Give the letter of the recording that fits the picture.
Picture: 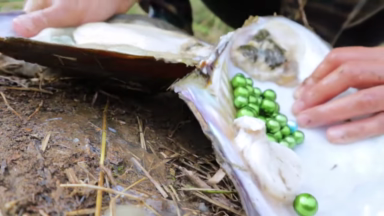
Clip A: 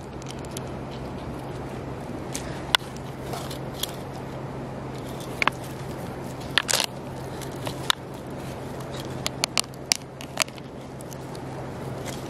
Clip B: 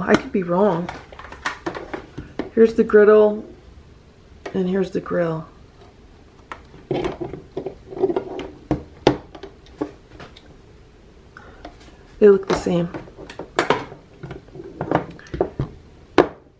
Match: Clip A